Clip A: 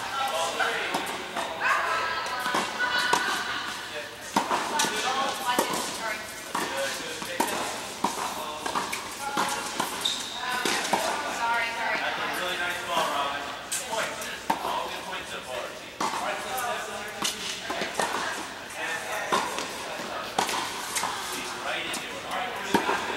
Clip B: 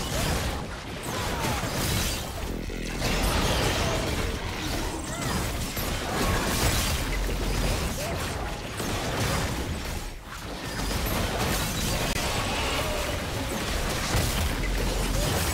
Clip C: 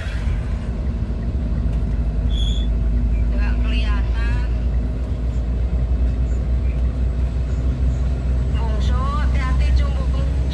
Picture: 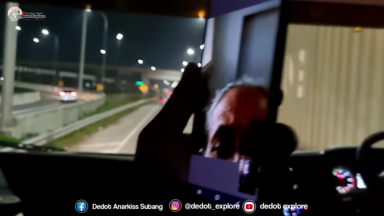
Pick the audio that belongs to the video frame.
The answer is C